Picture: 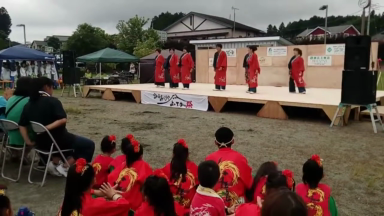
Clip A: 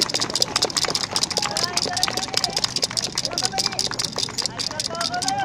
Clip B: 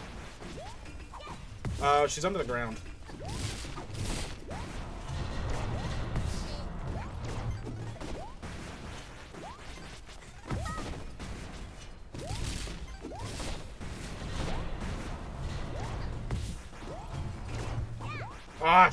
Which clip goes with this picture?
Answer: A